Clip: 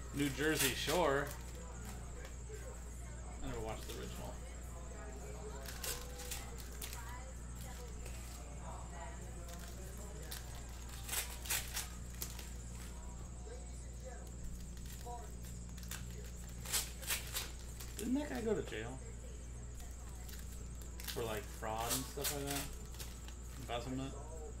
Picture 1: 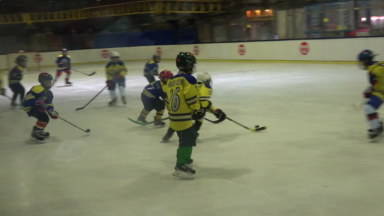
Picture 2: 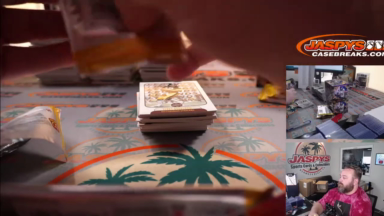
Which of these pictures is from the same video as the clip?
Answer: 2